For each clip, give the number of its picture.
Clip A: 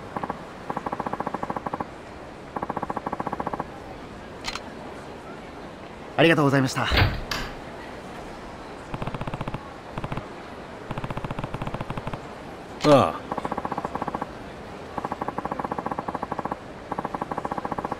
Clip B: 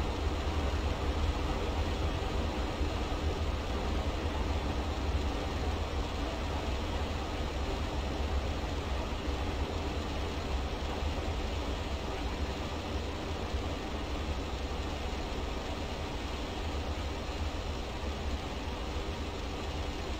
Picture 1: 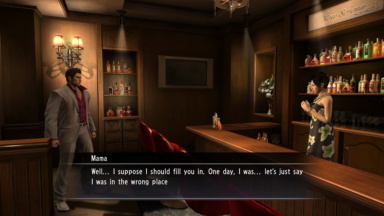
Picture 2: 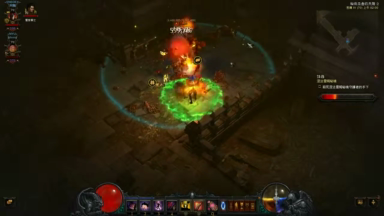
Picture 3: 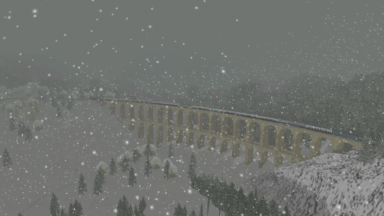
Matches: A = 1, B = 3